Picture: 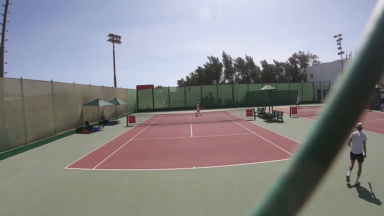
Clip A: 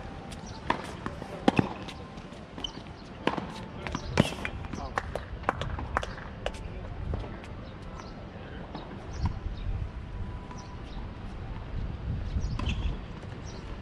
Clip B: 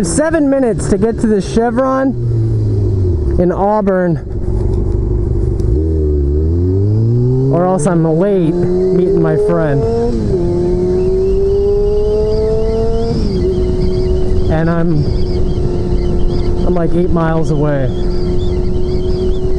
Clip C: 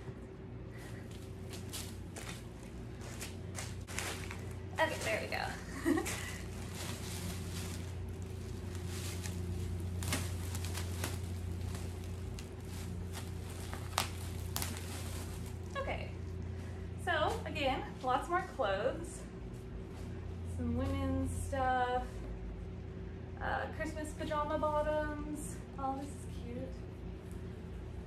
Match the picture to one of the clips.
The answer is A